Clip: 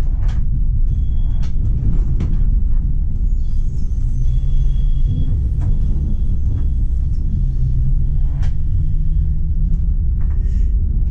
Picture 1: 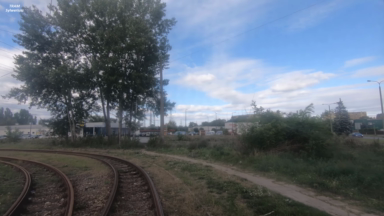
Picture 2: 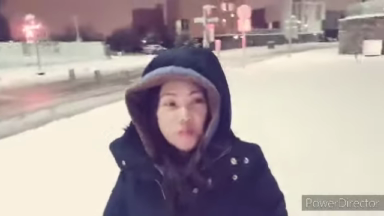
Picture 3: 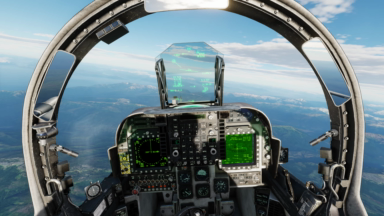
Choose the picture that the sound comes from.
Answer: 1